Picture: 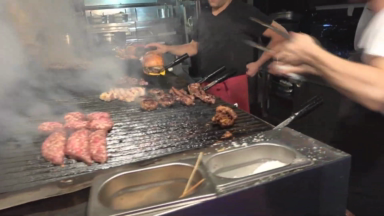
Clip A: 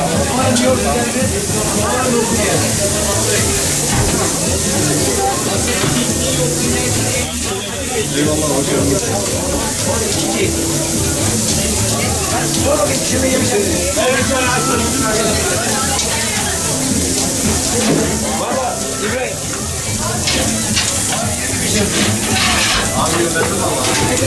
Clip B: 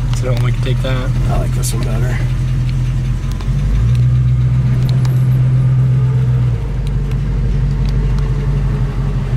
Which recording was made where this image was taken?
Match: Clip A